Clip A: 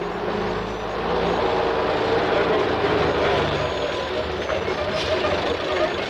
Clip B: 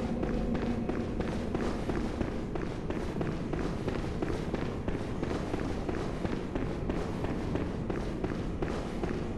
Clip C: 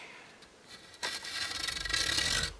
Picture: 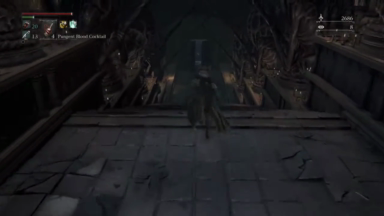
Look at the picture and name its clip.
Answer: B